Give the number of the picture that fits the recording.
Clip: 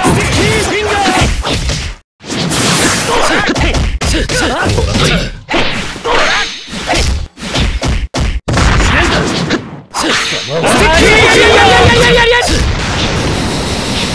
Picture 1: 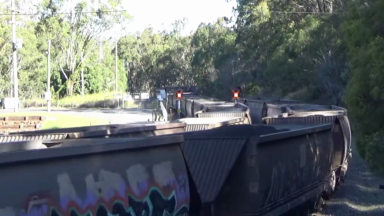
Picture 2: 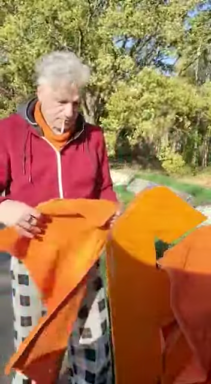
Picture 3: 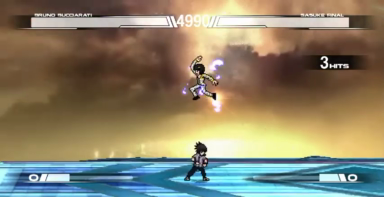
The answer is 3